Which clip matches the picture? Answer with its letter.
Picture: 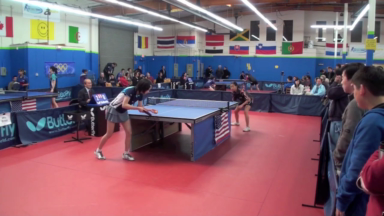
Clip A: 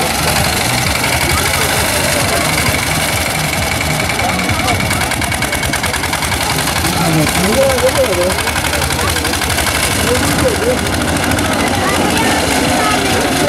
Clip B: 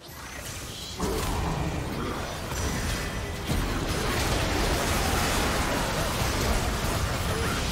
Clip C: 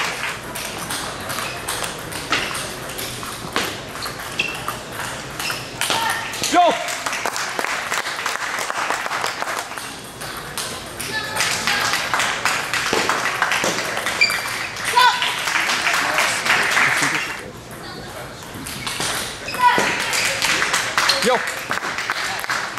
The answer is C